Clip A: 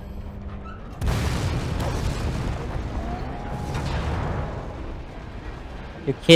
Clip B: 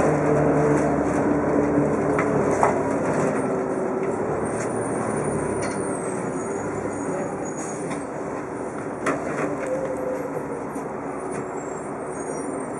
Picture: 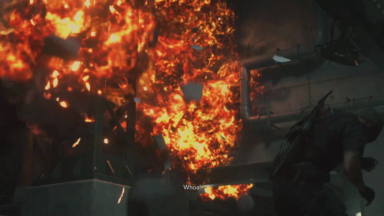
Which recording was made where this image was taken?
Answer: A